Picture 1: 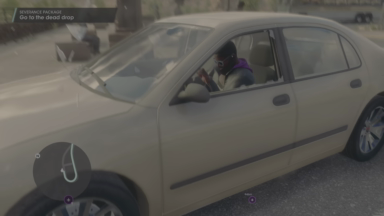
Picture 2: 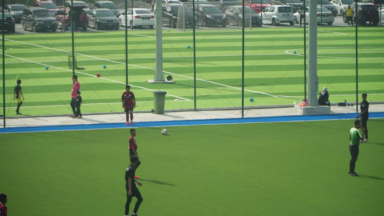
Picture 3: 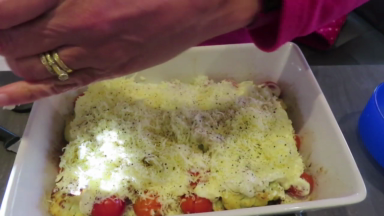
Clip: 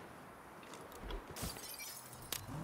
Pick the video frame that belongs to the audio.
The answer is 1